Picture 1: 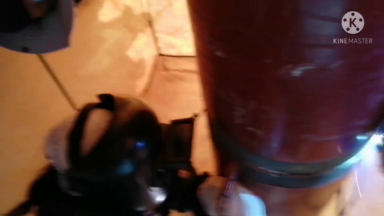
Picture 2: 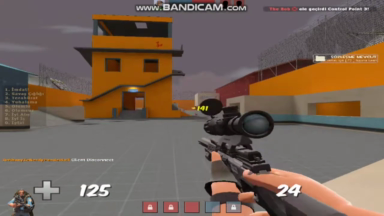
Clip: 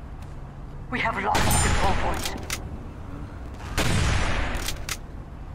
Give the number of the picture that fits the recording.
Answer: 2